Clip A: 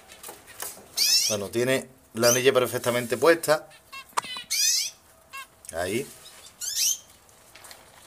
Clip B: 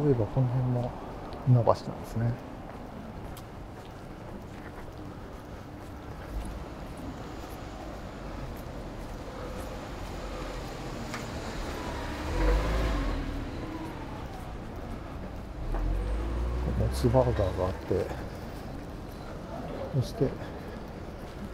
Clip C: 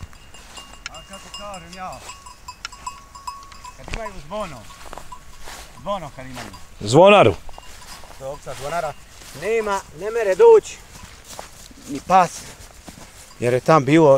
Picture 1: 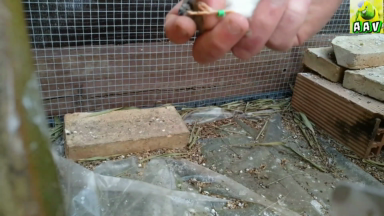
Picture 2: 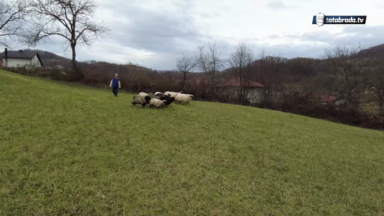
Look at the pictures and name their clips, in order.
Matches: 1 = A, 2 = C